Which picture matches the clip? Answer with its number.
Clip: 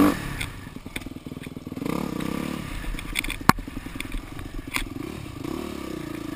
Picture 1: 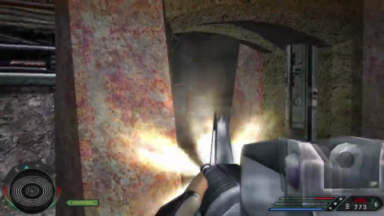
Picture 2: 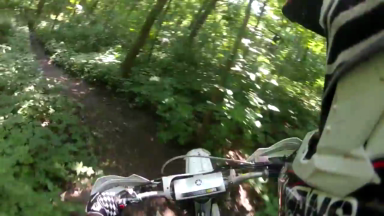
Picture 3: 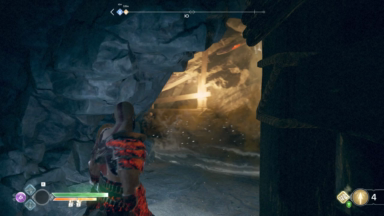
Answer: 2